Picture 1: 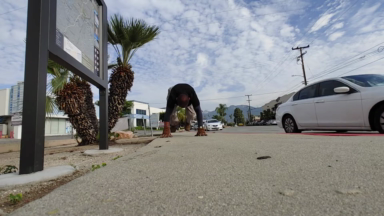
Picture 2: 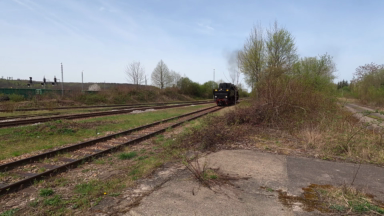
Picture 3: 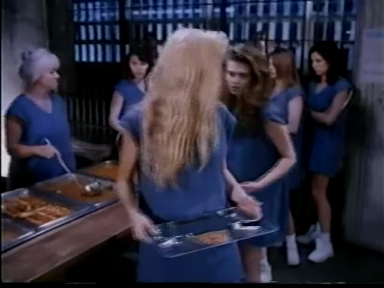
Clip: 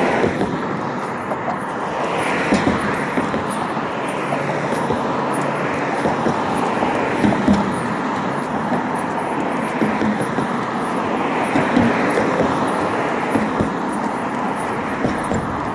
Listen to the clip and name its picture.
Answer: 1